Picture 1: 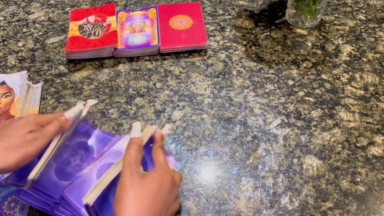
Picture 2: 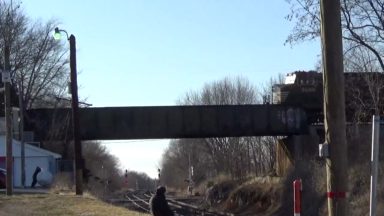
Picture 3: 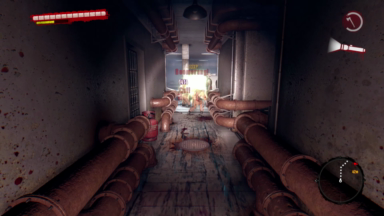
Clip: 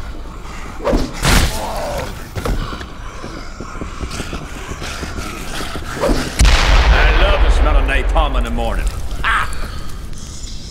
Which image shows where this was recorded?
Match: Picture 3